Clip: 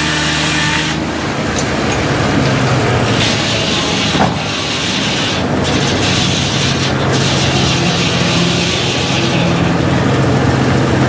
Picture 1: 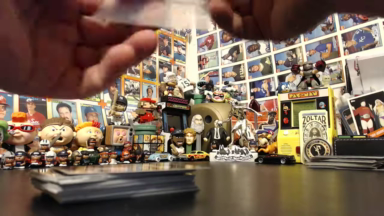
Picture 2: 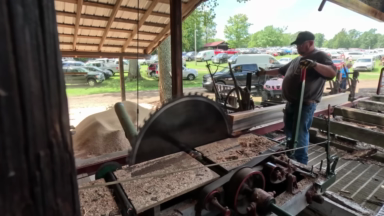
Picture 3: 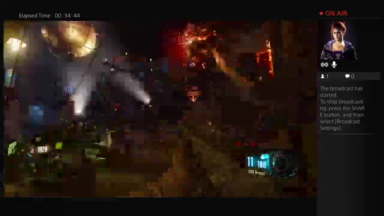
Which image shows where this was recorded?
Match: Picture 2